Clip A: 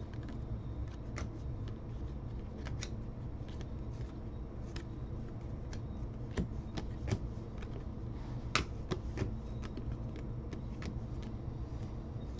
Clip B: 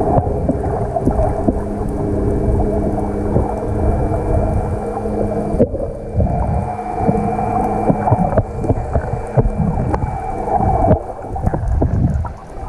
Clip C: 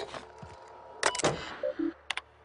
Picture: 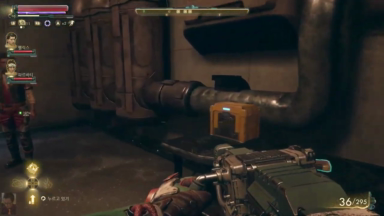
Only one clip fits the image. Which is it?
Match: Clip C